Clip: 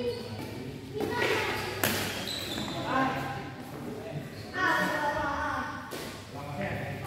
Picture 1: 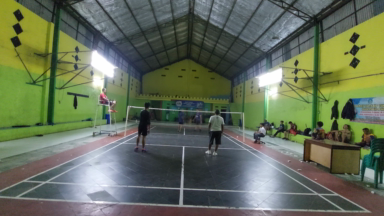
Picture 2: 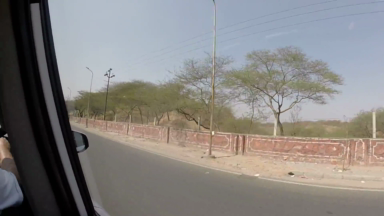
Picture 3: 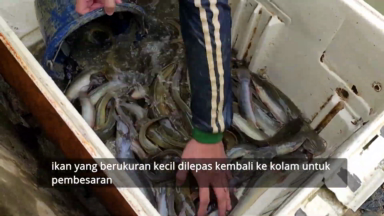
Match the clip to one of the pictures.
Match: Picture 1